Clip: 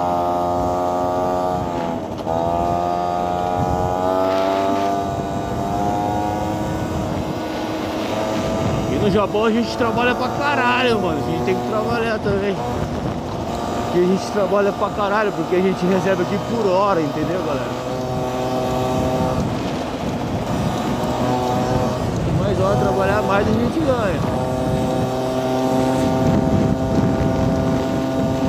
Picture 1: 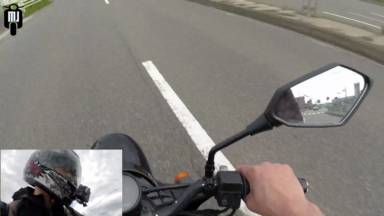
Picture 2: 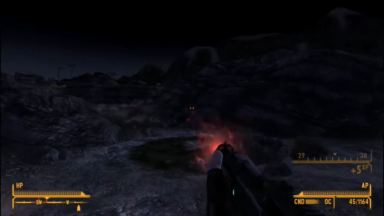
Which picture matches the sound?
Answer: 1